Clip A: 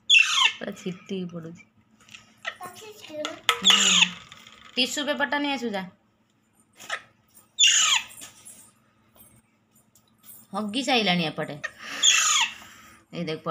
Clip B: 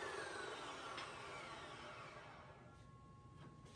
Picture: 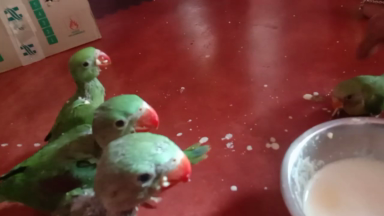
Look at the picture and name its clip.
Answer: A